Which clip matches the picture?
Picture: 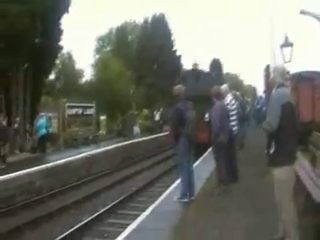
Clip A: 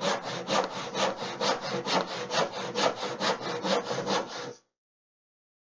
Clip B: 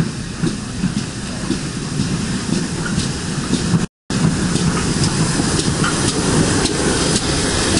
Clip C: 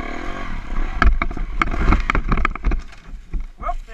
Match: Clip B